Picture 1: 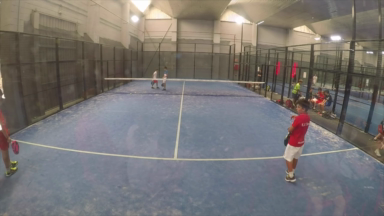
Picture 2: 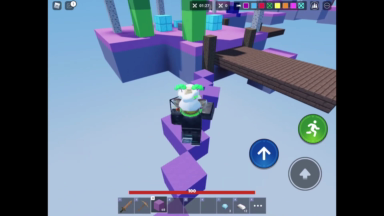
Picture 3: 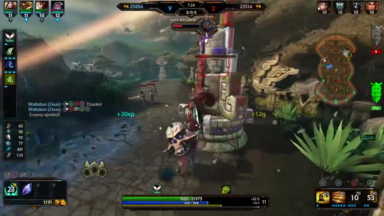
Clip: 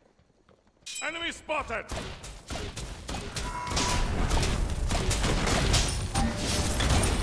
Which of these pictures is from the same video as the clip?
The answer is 3